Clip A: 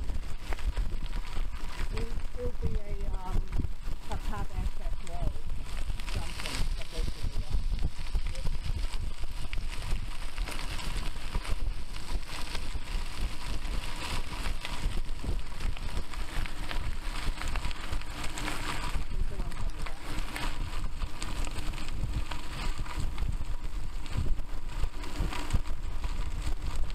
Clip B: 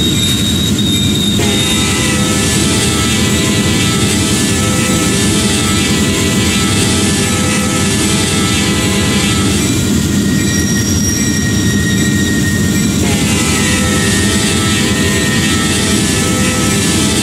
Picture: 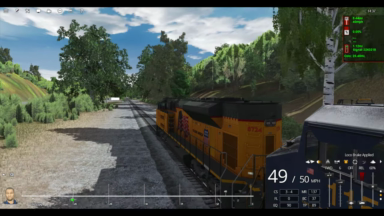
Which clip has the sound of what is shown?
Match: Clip B